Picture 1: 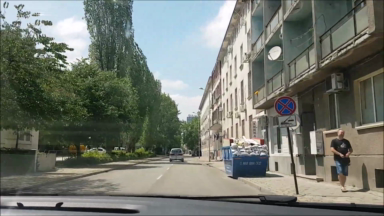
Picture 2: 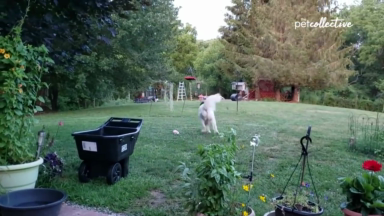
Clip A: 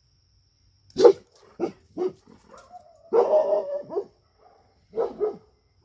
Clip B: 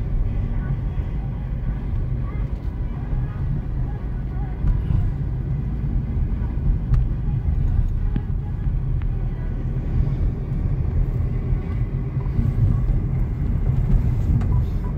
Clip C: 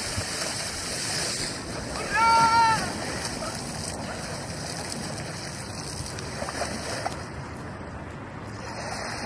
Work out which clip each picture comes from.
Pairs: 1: B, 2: A